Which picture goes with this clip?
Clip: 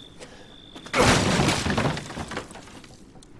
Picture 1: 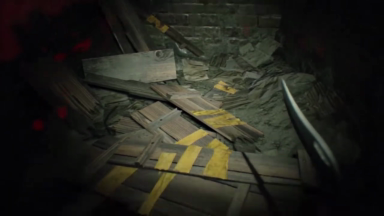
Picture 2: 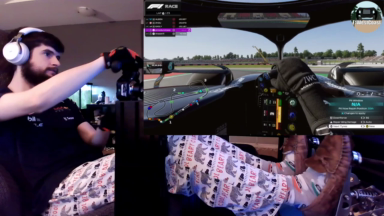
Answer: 1